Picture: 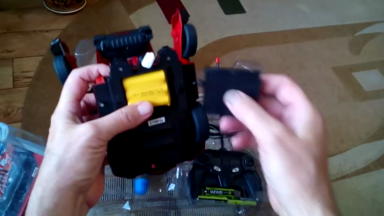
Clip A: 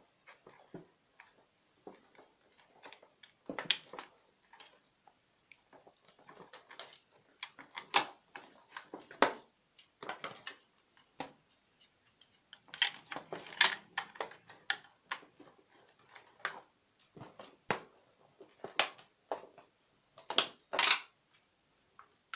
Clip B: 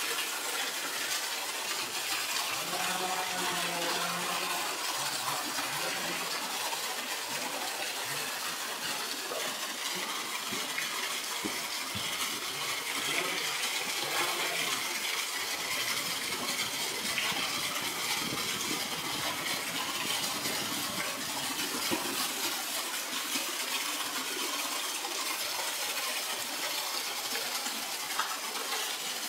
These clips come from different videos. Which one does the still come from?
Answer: A